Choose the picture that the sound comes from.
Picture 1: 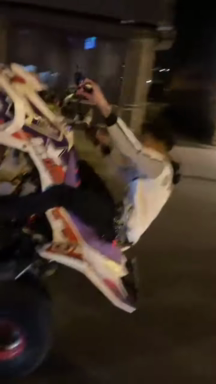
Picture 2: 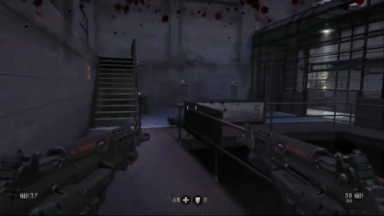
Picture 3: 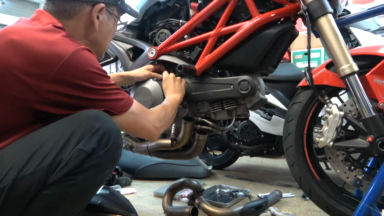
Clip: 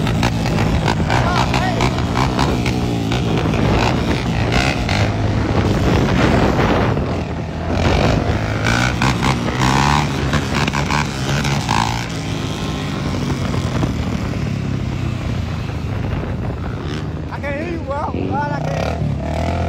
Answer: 1